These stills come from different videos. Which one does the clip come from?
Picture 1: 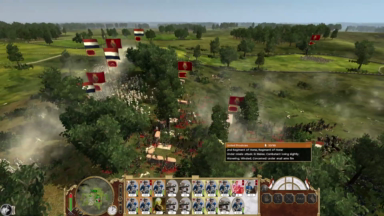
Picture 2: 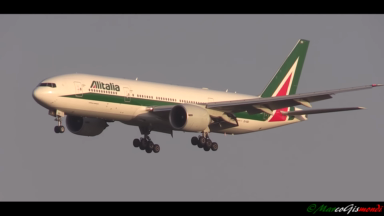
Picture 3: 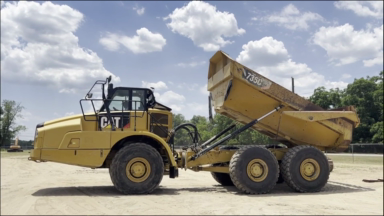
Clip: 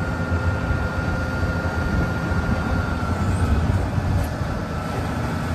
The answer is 3